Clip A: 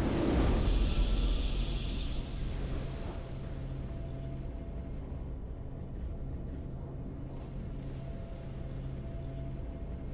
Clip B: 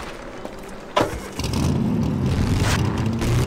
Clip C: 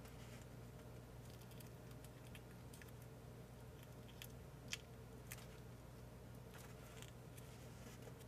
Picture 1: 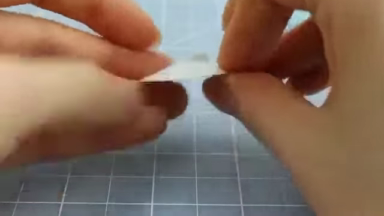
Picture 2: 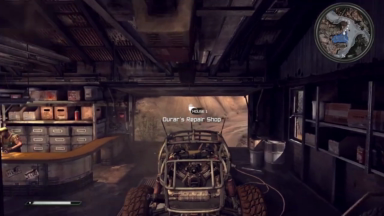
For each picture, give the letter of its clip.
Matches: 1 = C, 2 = B